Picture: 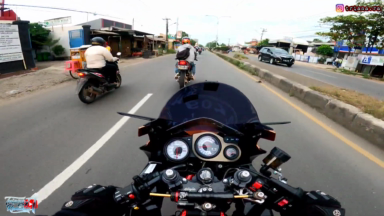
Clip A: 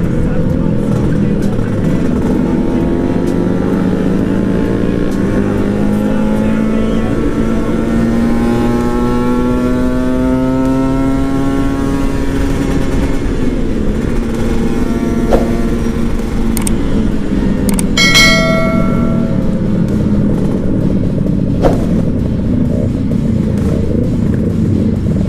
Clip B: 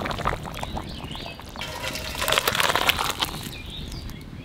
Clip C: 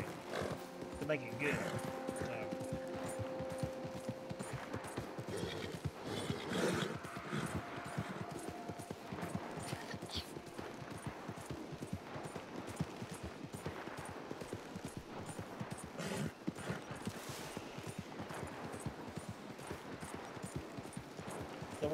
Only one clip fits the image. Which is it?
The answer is A